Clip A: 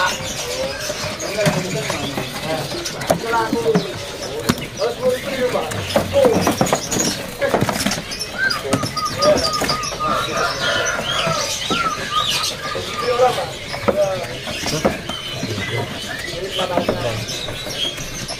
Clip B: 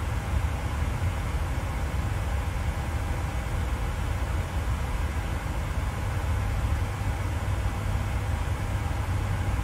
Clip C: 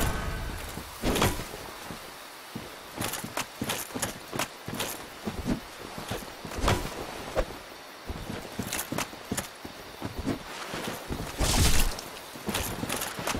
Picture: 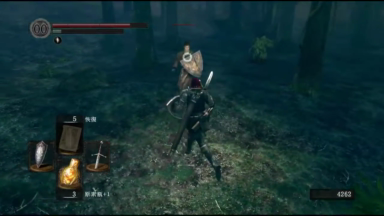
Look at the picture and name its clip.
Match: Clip C